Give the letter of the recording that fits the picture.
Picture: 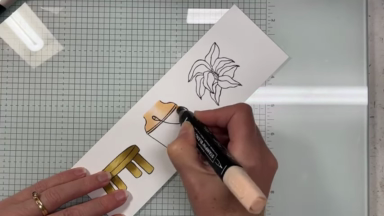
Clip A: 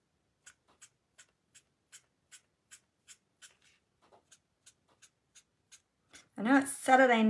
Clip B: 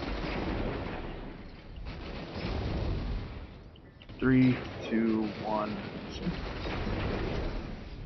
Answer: A